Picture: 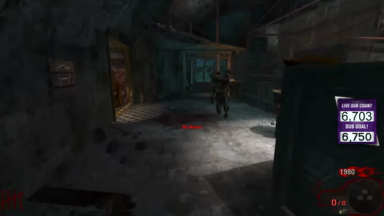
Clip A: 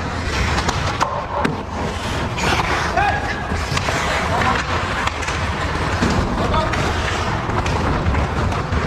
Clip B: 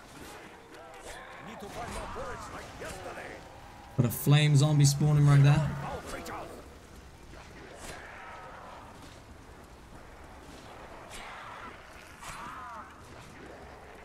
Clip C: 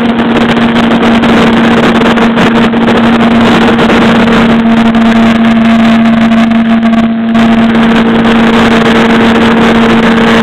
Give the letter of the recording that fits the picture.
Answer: B